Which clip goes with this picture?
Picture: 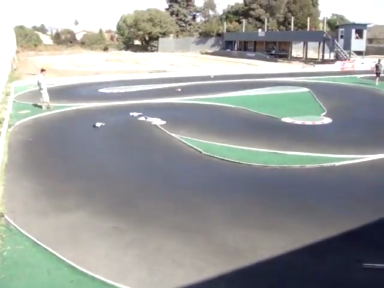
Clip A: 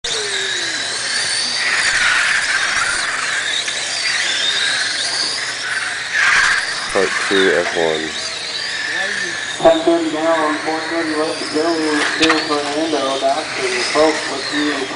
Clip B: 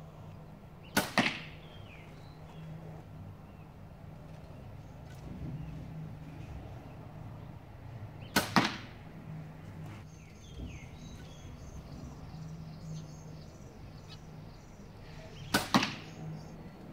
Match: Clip A